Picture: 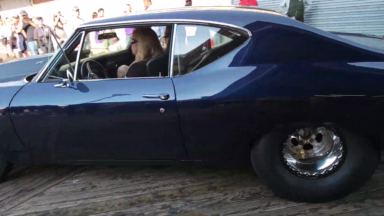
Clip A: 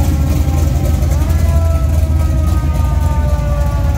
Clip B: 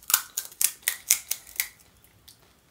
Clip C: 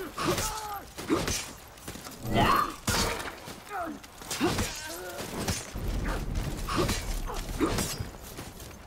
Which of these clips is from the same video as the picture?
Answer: A